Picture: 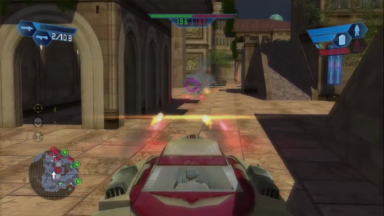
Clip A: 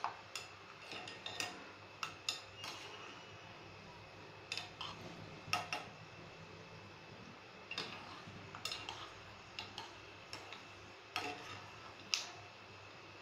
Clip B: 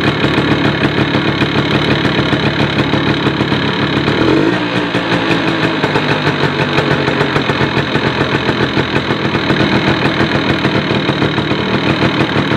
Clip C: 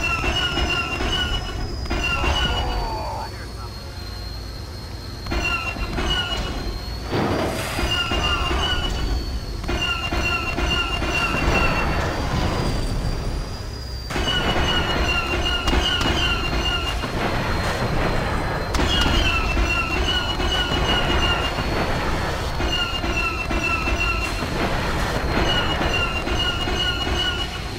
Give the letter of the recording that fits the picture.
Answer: C